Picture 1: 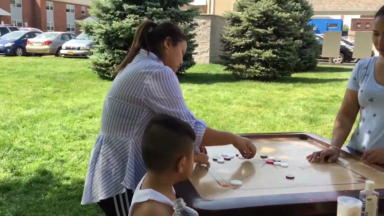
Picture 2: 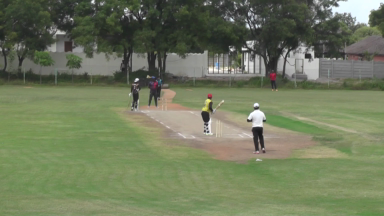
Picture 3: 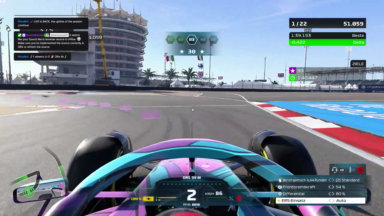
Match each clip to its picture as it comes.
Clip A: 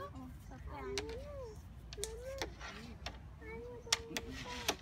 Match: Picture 1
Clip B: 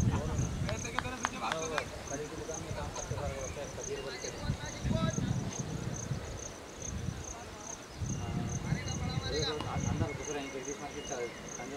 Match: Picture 2